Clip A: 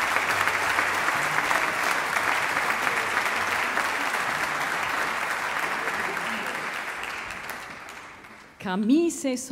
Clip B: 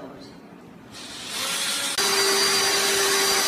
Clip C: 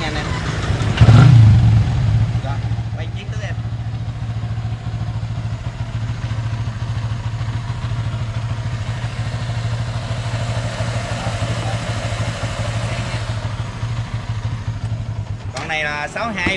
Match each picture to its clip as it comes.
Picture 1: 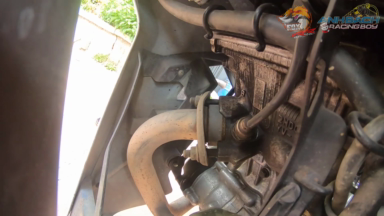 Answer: C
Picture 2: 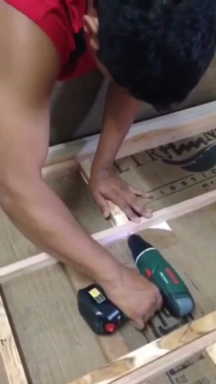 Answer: B